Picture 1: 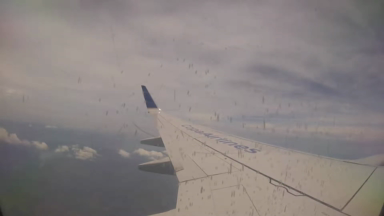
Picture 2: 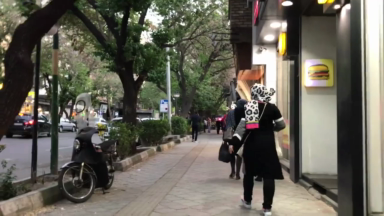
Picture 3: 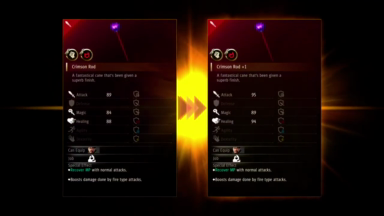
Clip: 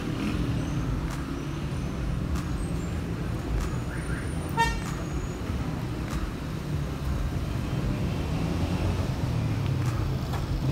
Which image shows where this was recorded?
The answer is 2